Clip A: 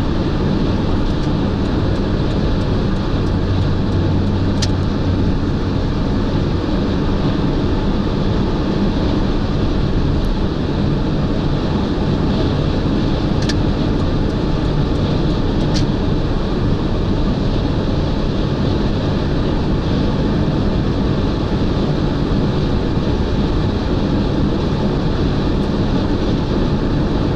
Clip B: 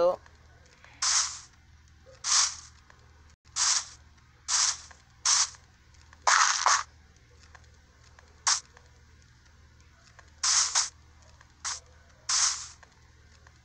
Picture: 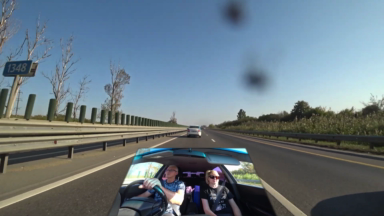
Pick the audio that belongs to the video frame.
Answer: A